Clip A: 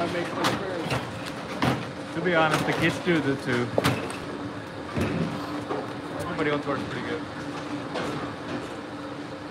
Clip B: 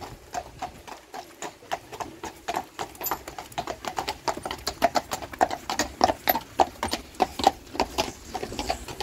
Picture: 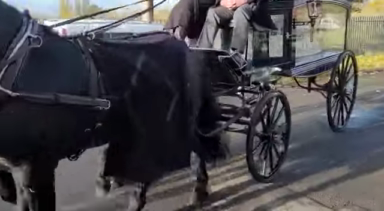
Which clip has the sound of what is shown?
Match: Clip B